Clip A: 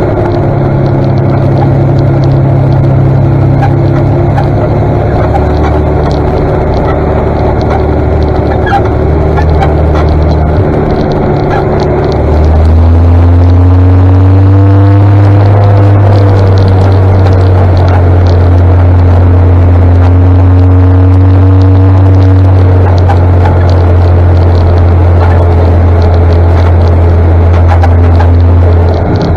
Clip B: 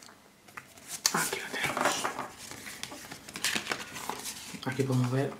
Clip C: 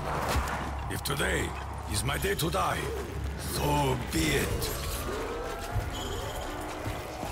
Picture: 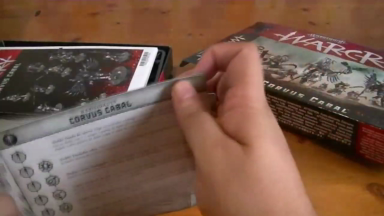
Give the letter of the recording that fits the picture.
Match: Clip B